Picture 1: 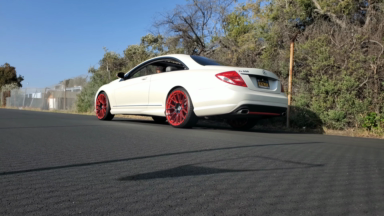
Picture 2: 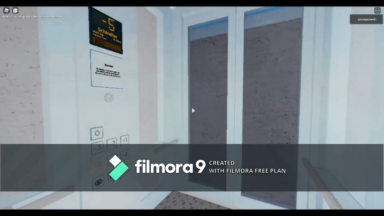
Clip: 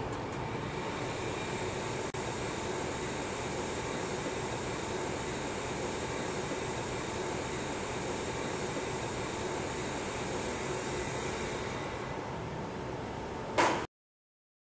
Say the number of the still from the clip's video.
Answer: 2